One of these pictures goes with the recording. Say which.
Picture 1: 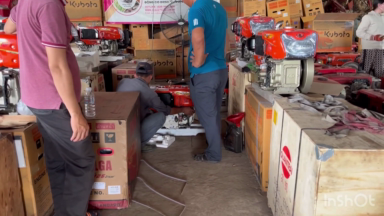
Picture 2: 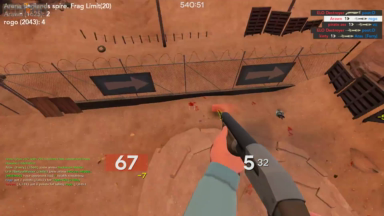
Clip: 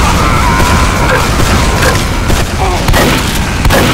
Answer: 2